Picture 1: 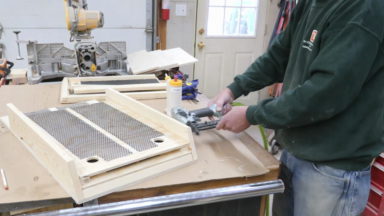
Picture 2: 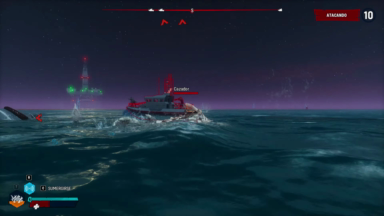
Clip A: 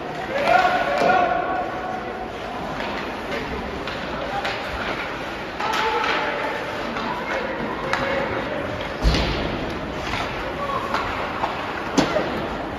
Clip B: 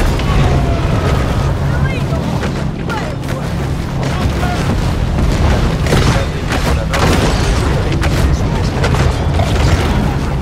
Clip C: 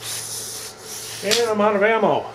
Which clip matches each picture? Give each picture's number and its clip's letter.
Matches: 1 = C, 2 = B